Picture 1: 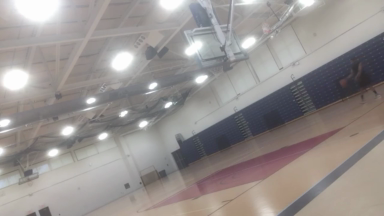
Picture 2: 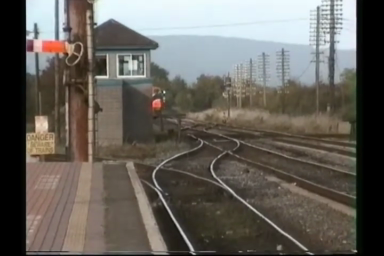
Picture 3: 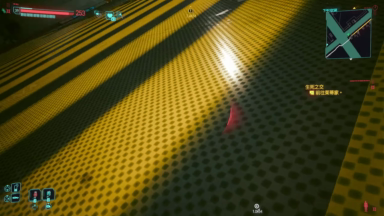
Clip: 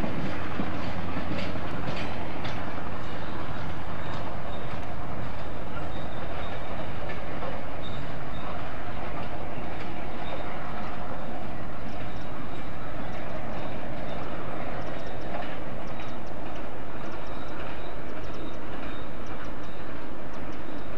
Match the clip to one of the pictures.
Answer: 2